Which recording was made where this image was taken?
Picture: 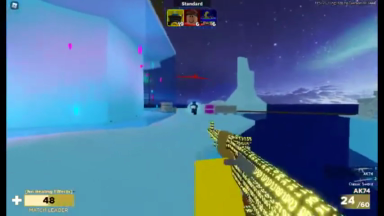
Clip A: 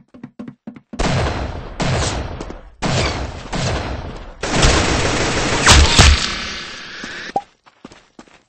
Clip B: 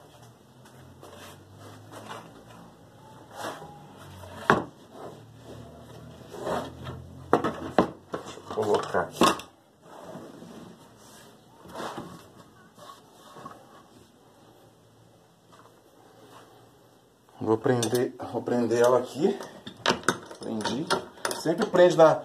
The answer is A